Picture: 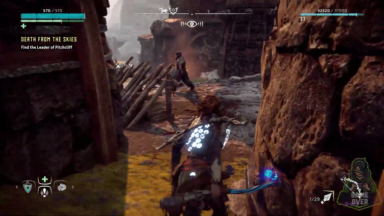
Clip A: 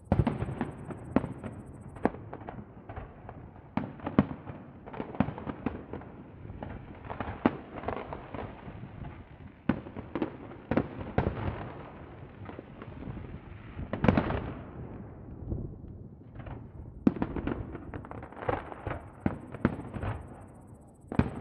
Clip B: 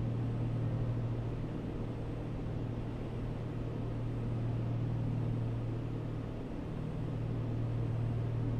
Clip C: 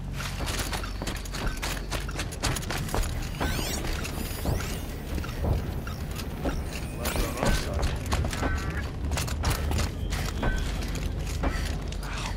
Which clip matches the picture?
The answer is C